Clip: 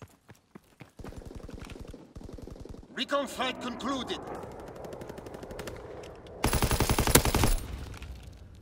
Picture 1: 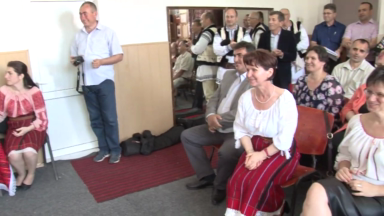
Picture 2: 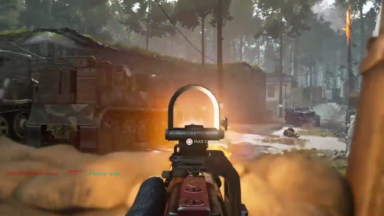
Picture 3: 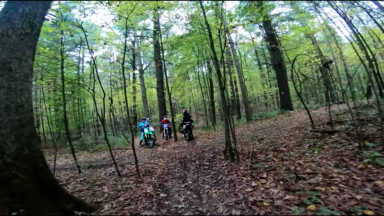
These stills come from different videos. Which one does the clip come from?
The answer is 2